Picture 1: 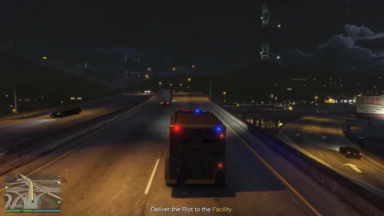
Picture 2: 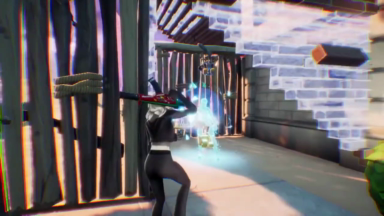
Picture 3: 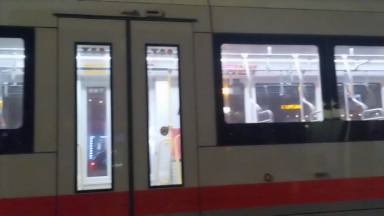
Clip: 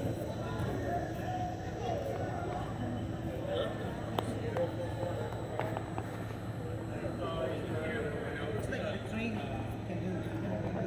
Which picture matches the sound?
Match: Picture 3